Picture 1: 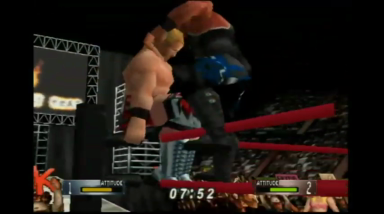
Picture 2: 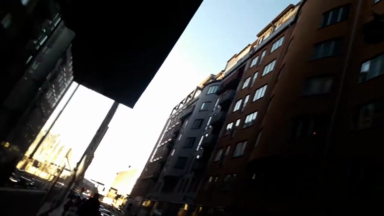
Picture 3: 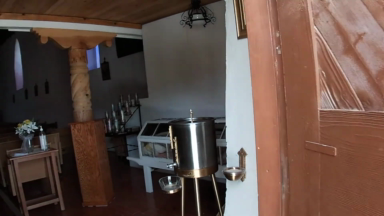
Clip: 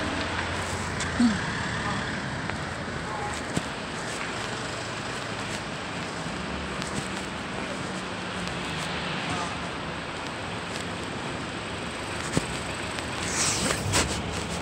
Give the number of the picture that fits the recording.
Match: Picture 2